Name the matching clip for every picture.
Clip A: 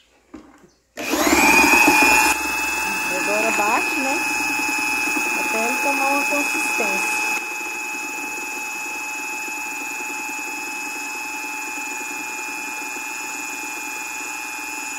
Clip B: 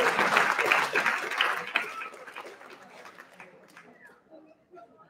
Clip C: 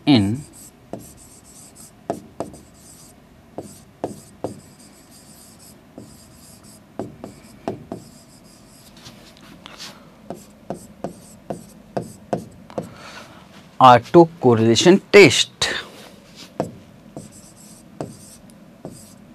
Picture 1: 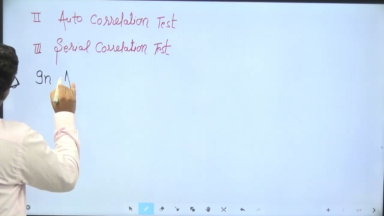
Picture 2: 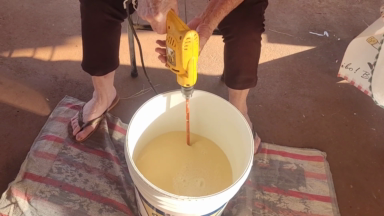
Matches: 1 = C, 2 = A